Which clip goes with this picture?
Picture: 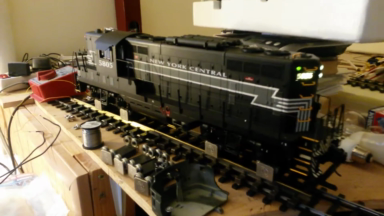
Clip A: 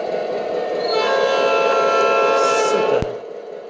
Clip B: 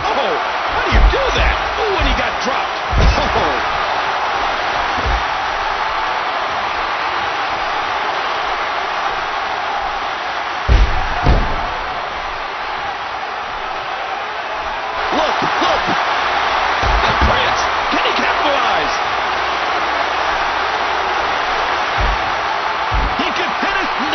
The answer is A